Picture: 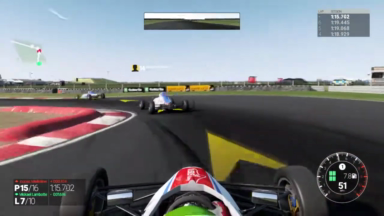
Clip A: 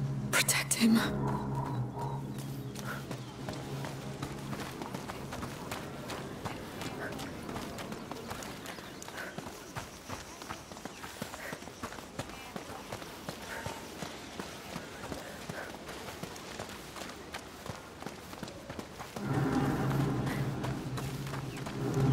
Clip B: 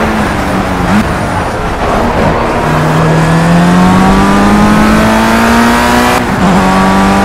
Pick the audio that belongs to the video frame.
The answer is B